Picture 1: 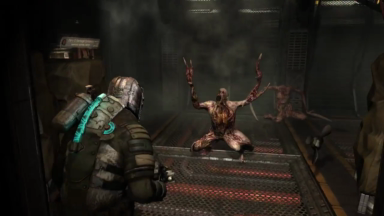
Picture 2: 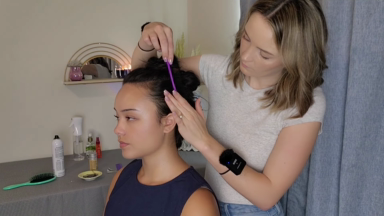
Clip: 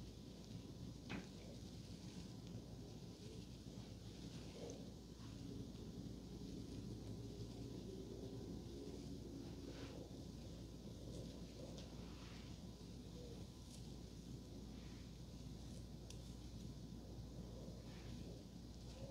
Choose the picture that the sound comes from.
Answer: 2